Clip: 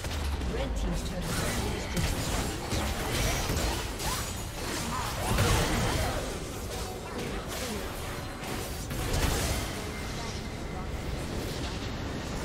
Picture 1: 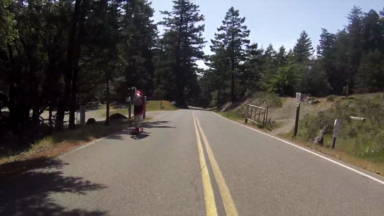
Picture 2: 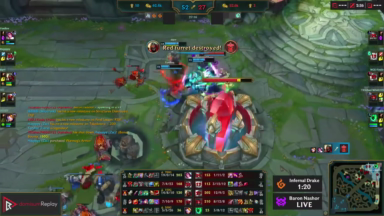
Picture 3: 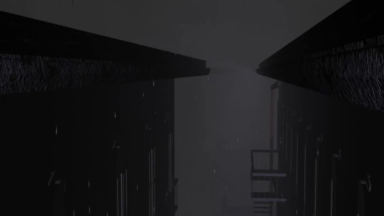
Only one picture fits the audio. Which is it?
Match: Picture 2